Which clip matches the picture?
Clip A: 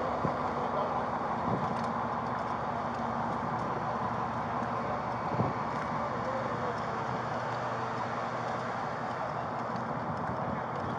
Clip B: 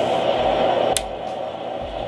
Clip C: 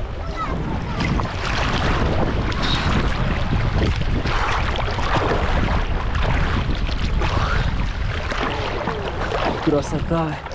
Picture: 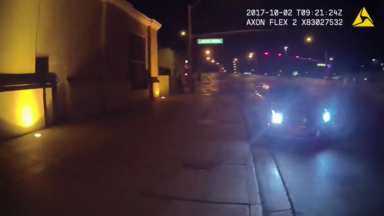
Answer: A